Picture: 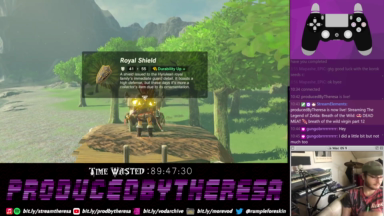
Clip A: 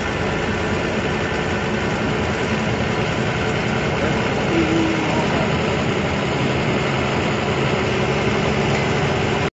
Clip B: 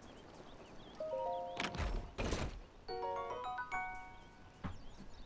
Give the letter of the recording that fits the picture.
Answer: B